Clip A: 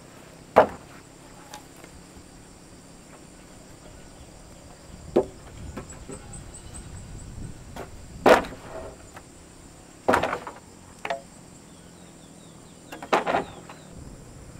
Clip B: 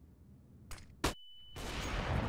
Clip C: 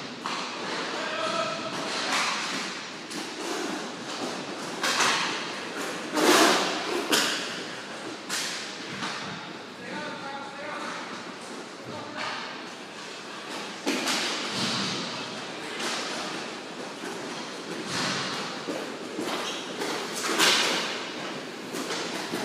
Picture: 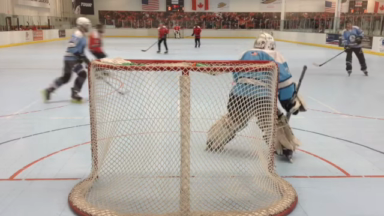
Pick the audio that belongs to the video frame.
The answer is C